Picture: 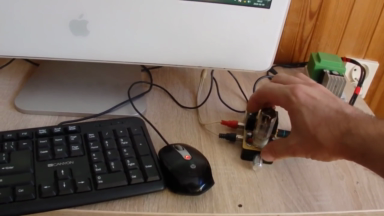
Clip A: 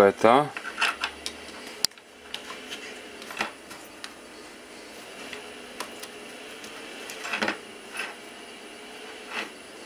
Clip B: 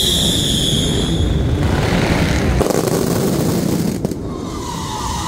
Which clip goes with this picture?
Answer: A